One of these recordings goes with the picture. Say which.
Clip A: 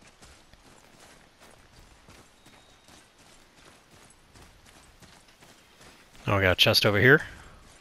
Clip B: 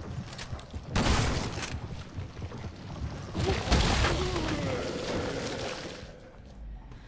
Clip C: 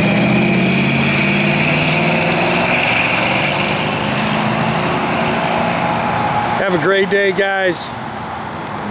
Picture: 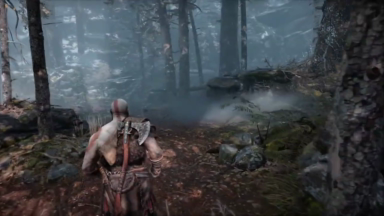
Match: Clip A